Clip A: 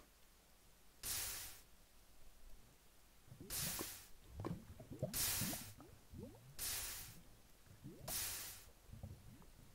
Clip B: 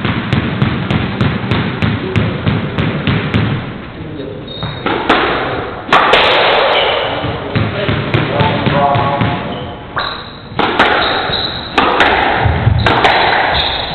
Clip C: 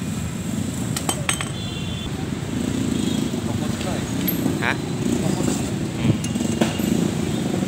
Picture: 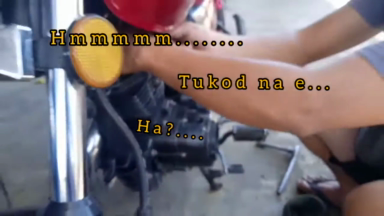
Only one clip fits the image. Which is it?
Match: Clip C